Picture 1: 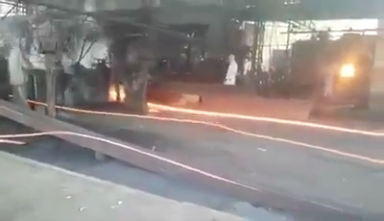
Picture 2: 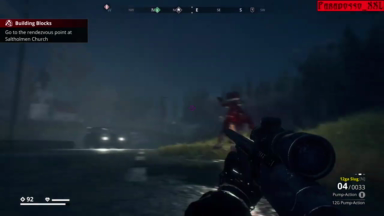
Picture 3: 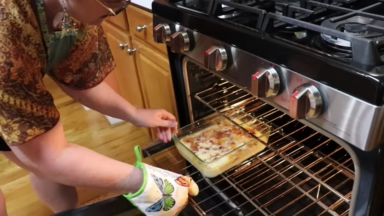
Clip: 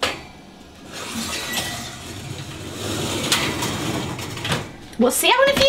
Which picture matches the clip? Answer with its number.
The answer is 3